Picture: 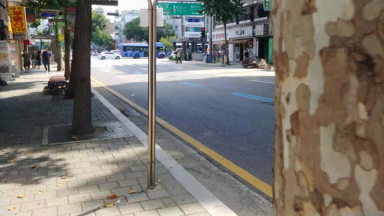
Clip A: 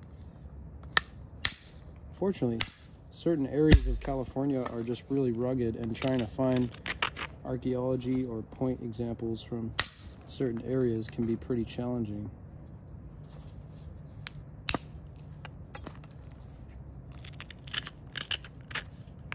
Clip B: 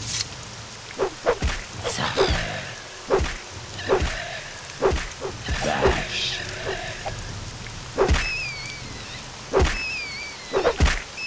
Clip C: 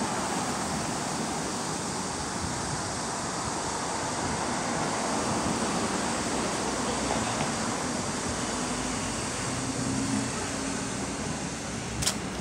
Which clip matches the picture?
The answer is C